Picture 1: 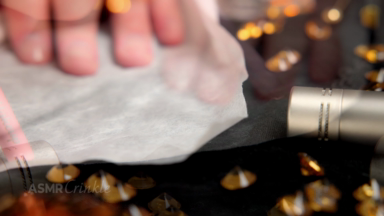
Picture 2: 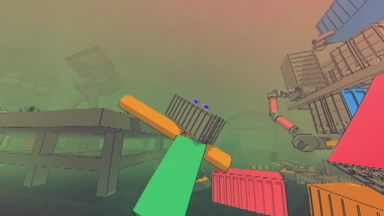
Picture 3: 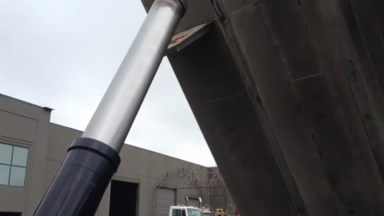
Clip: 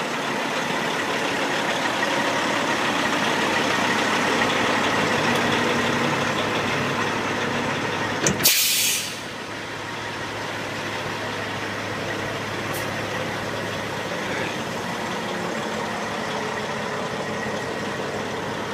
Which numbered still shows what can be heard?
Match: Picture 3